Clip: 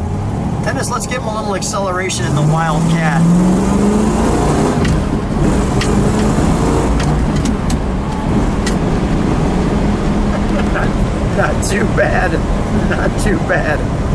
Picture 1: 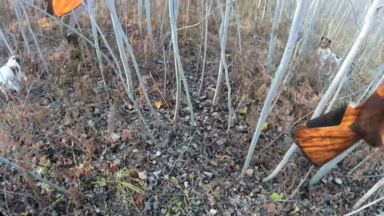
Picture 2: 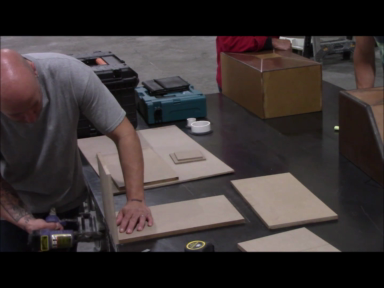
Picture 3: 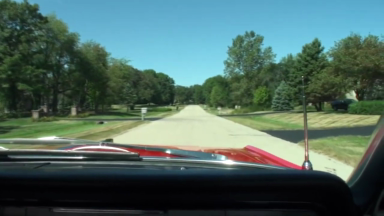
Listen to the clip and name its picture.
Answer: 3